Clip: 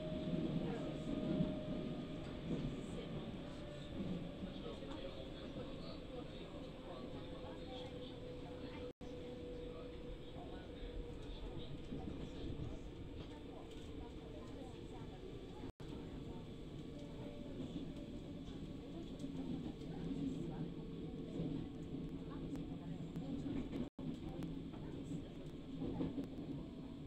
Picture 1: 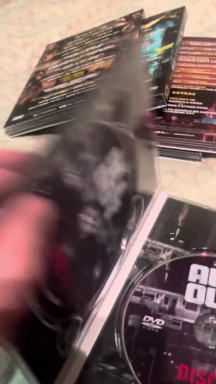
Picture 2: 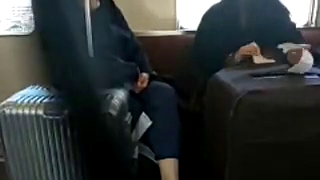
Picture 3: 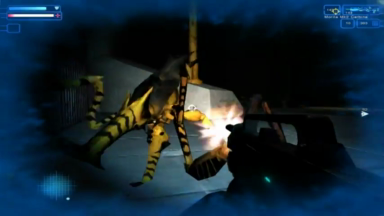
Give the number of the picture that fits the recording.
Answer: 2